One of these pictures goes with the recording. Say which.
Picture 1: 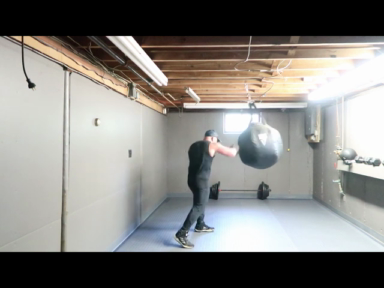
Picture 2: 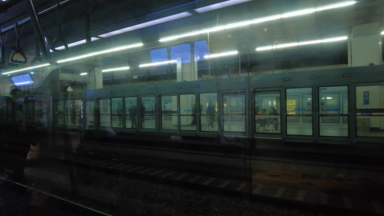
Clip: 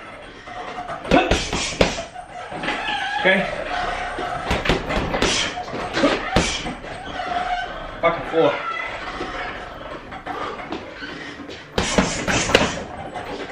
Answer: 1